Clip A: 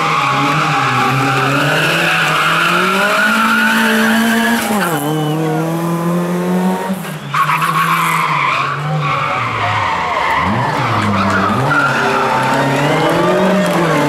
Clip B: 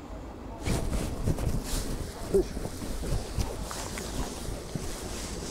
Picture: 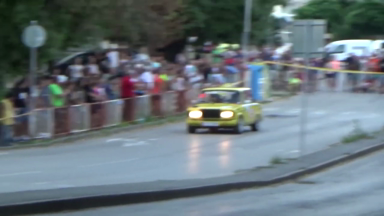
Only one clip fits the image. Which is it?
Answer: A